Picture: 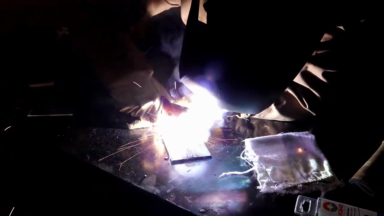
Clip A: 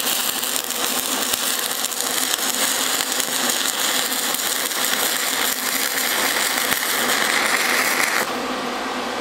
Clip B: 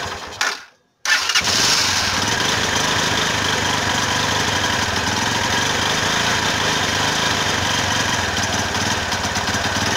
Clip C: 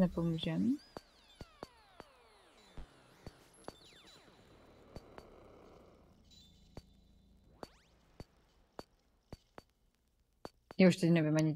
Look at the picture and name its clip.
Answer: A